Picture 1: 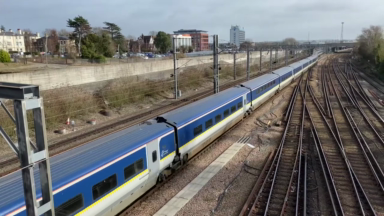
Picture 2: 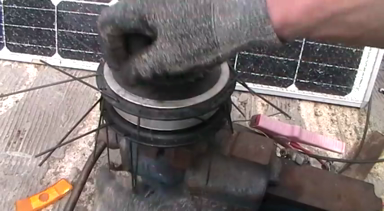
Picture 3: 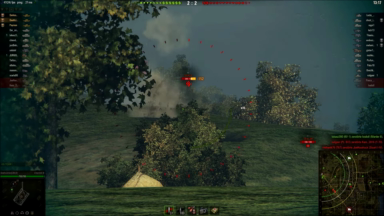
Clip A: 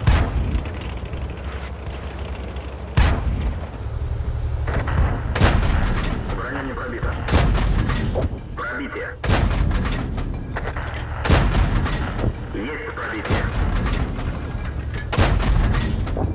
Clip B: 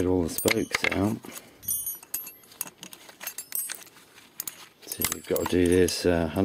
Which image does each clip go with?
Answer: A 3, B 2